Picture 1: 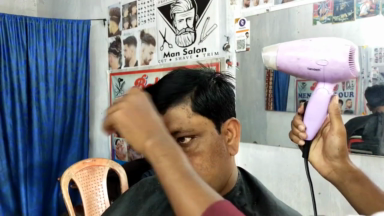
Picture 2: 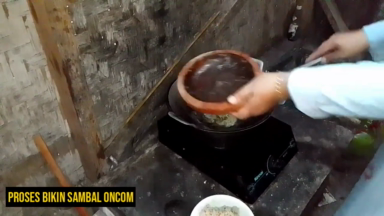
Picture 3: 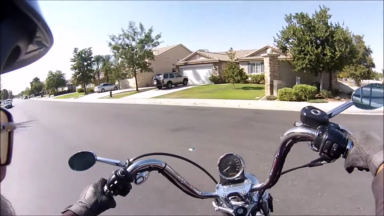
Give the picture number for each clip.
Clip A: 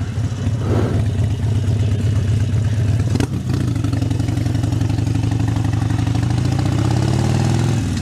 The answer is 3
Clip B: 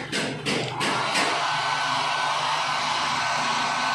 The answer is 1